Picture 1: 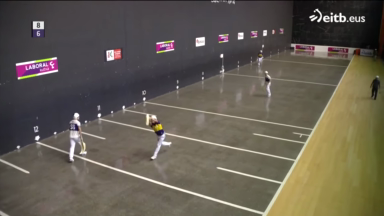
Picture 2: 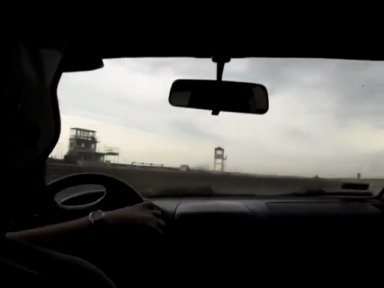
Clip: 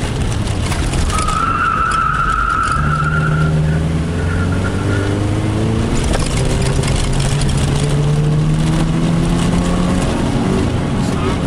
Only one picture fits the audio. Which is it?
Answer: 2